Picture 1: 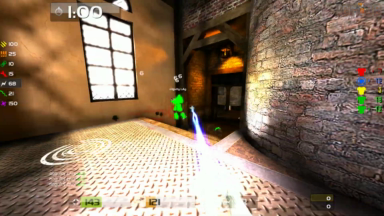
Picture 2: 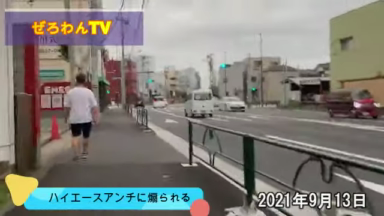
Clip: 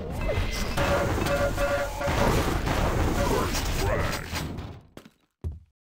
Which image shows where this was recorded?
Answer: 1